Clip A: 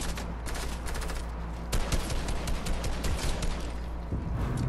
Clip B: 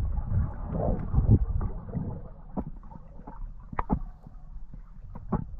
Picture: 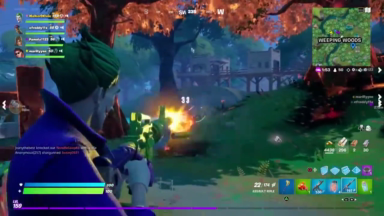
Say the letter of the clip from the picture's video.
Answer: A